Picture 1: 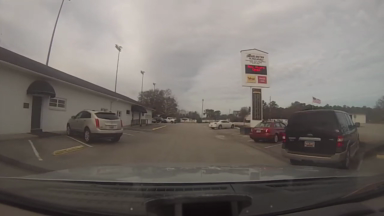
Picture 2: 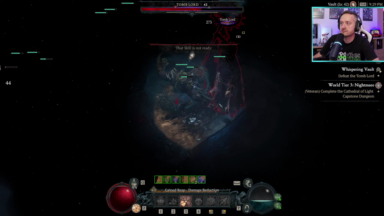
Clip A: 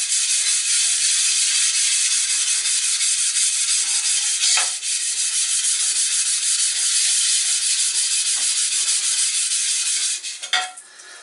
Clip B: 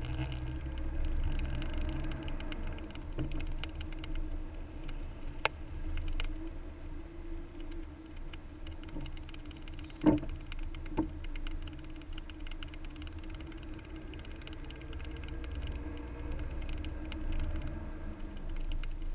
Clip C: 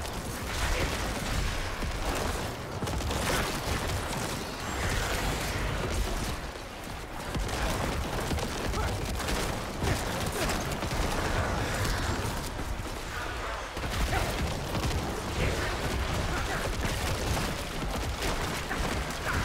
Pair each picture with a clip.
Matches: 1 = B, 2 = C